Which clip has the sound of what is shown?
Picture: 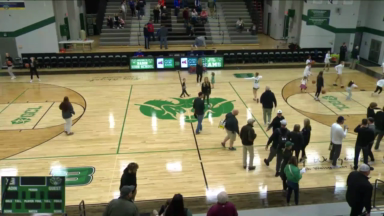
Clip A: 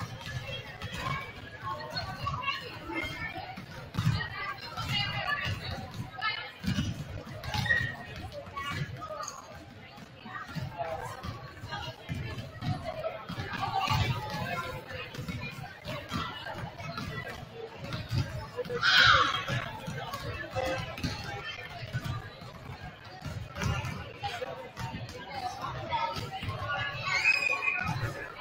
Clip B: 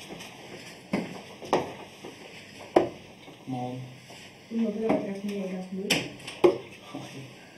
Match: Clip A